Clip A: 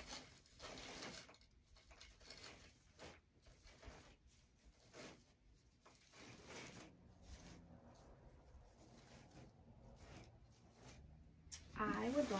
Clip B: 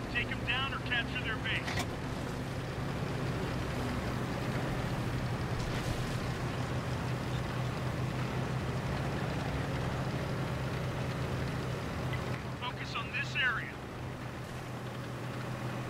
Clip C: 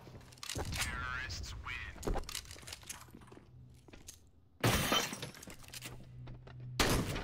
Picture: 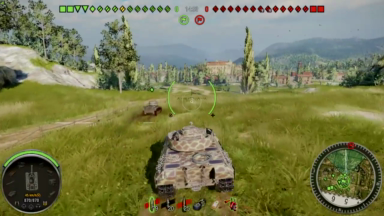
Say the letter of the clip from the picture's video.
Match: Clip B